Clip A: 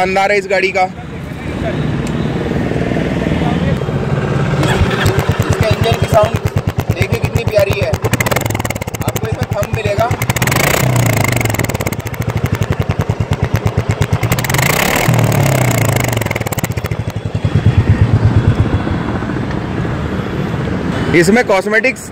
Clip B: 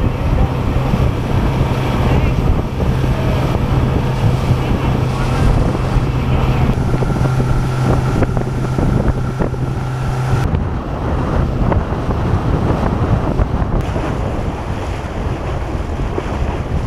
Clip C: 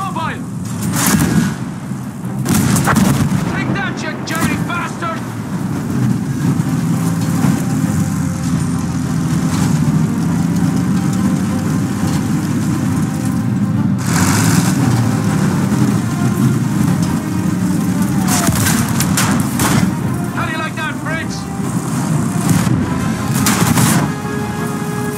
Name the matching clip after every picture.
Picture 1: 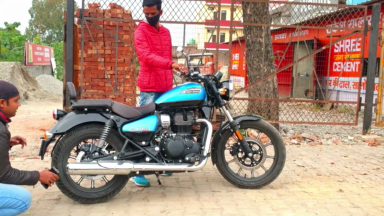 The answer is A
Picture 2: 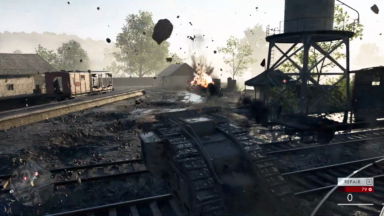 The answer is C